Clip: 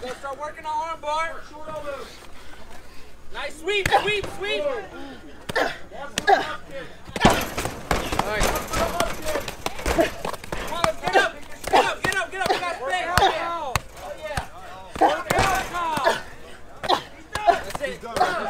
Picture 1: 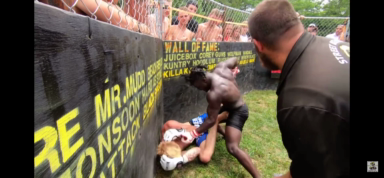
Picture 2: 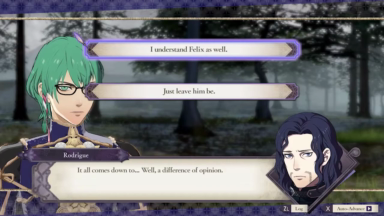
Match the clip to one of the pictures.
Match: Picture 1